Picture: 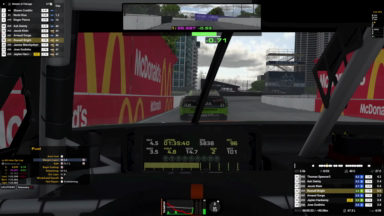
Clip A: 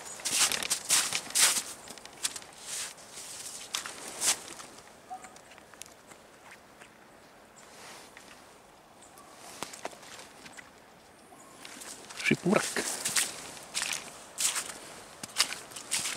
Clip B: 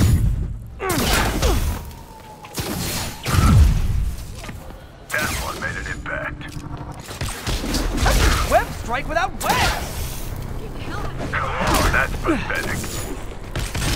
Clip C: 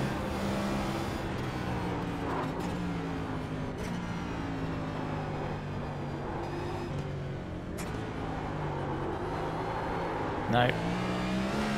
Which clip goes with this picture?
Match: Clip C